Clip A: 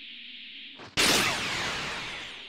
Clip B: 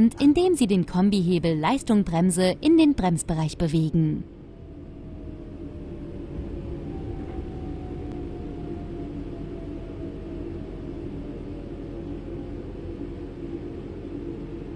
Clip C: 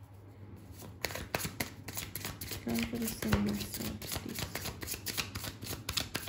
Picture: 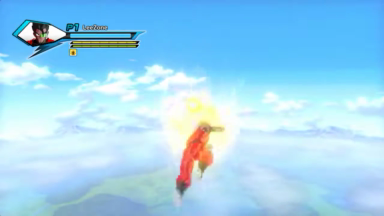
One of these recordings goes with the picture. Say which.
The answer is A